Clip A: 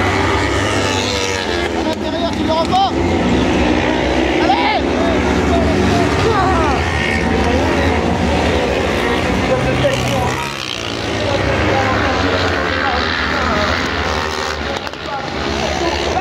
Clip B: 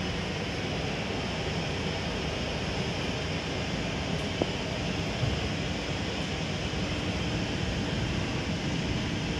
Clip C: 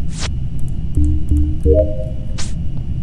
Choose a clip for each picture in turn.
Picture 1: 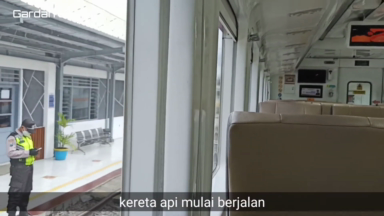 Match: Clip B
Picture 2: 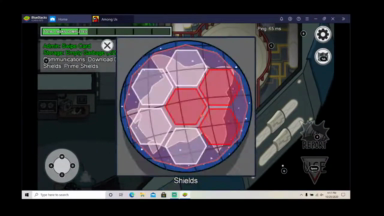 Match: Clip C